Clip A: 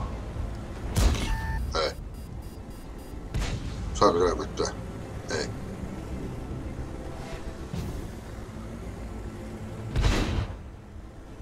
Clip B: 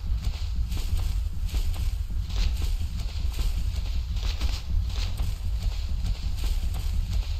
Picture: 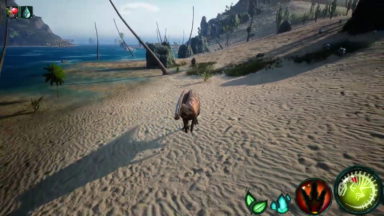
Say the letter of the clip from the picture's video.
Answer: B